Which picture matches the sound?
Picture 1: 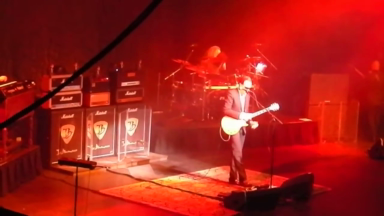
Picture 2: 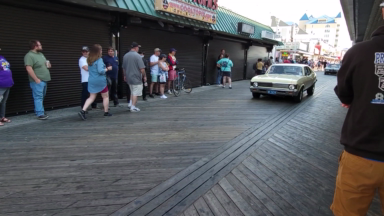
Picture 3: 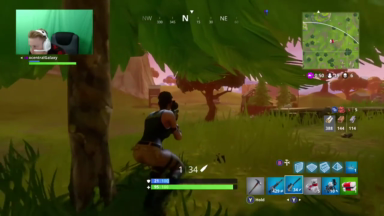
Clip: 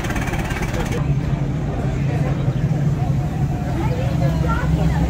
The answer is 2